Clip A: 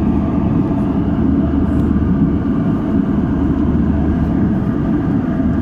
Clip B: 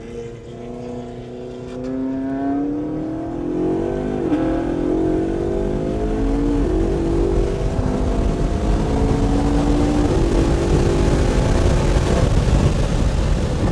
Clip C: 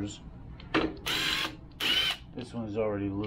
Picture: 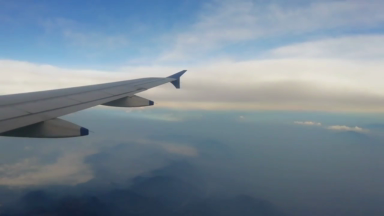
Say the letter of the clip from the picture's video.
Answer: A